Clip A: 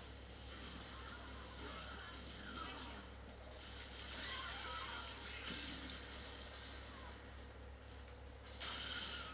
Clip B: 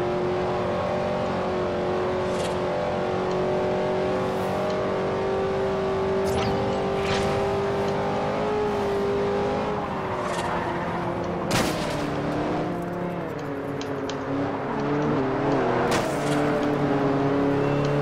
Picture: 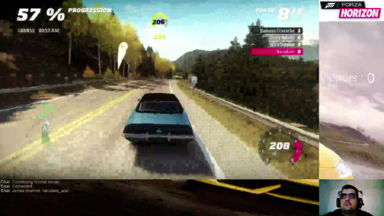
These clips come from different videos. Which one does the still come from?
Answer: B